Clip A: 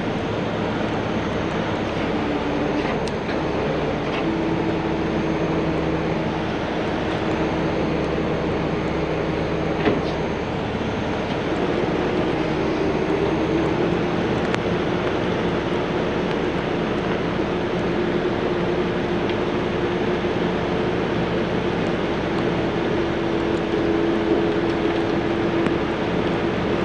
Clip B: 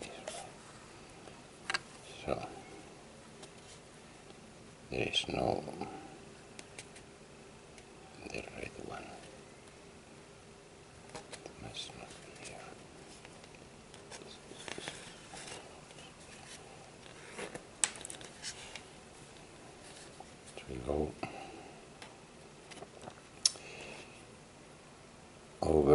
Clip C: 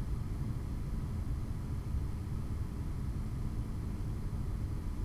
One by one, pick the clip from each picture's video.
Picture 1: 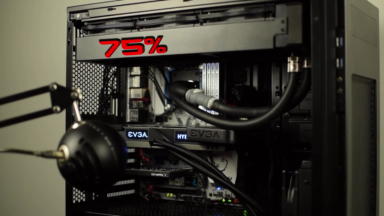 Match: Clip C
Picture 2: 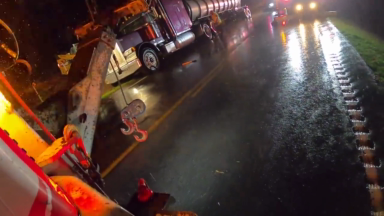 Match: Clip A